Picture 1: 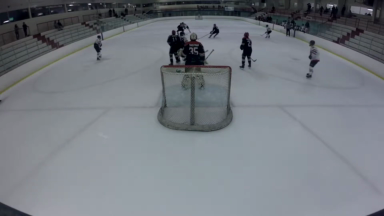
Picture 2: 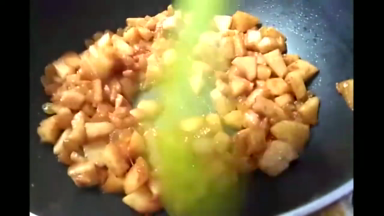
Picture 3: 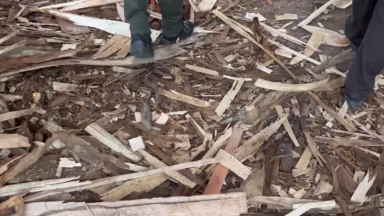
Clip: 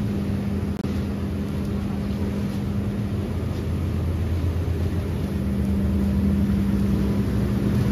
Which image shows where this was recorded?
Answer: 3